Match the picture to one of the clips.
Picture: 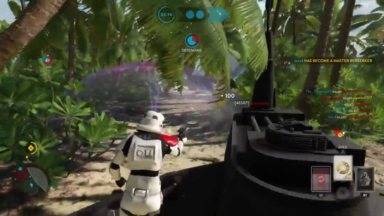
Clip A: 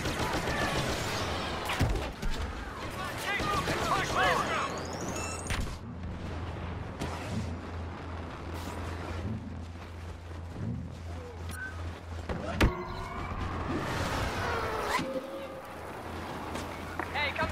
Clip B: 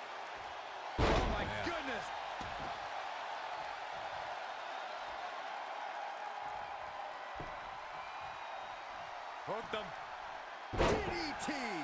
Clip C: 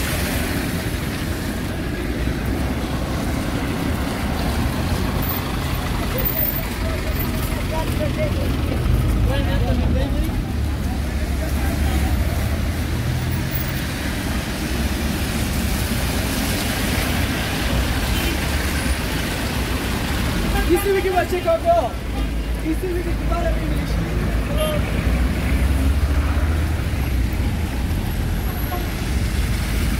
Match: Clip A